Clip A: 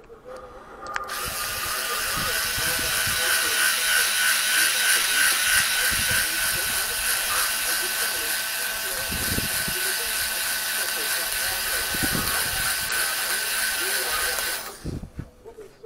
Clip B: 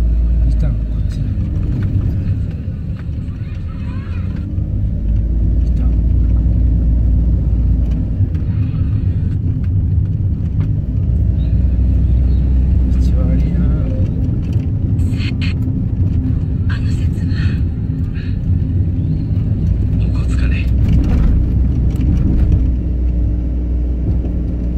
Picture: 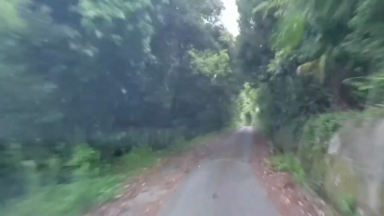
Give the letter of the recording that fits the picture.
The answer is B